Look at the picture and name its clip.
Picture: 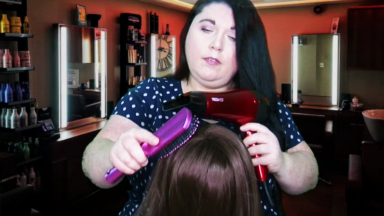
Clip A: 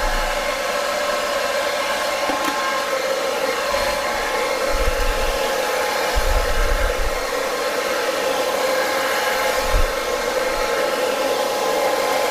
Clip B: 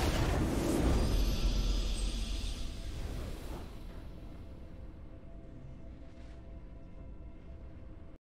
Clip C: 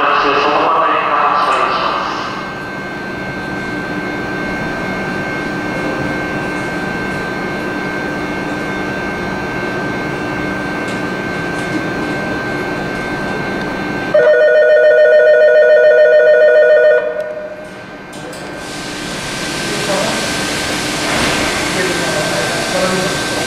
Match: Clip A